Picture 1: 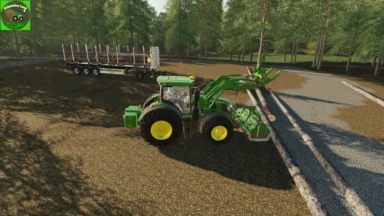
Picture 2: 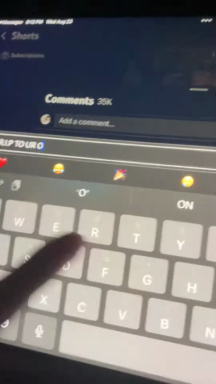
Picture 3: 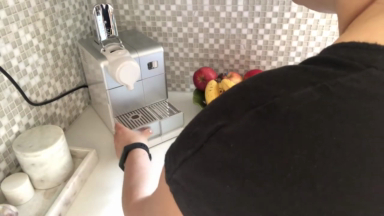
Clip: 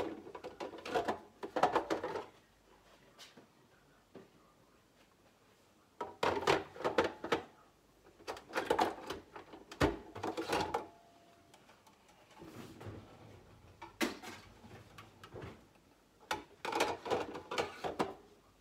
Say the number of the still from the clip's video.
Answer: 3